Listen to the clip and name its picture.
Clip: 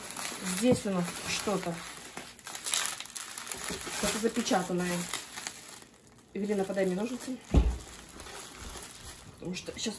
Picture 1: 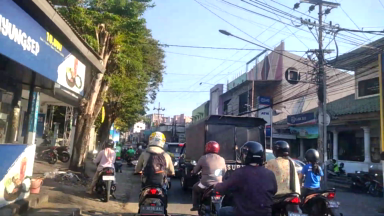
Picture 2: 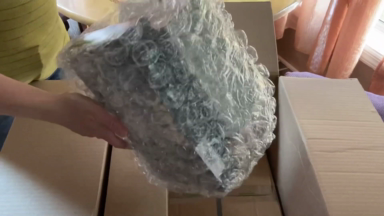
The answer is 2